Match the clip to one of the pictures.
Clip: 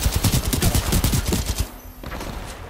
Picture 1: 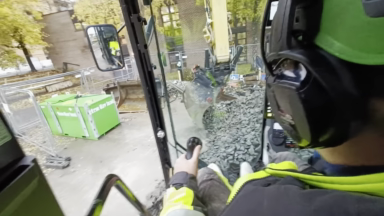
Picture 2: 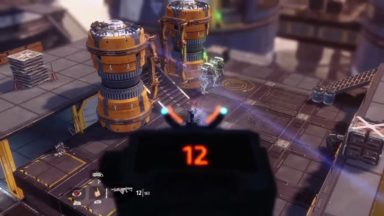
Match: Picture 2